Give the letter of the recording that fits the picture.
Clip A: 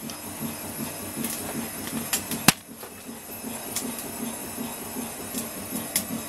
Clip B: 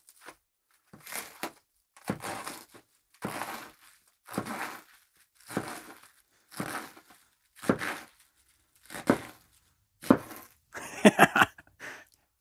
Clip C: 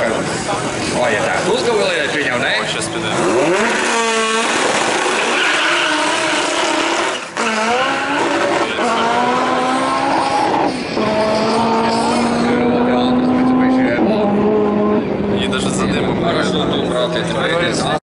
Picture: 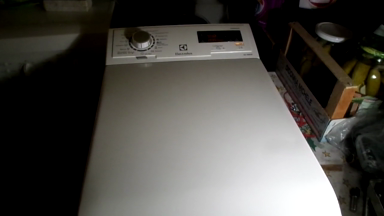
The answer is A